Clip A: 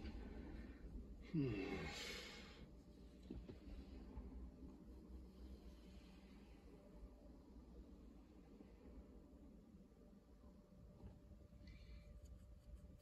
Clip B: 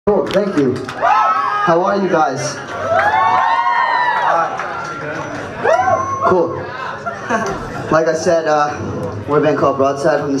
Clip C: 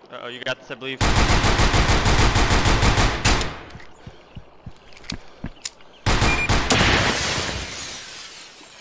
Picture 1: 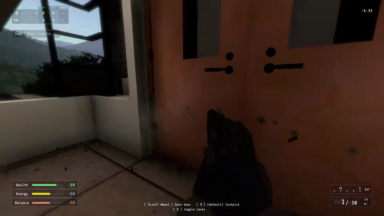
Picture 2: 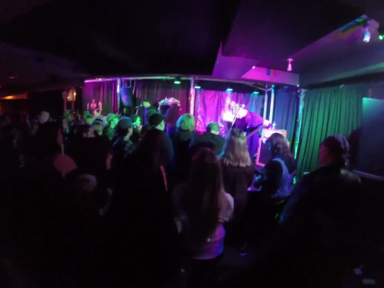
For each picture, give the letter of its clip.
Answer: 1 C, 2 B